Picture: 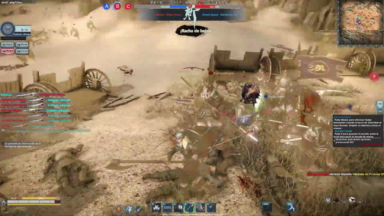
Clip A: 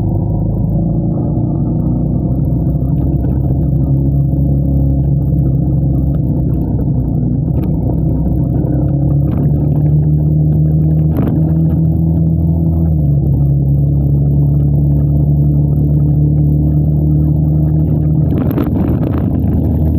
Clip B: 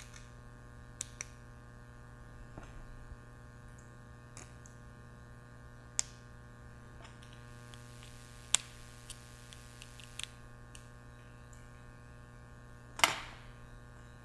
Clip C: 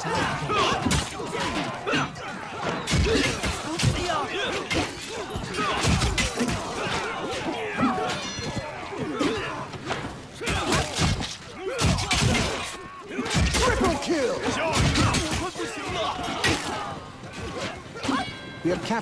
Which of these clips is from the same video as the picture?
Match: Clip C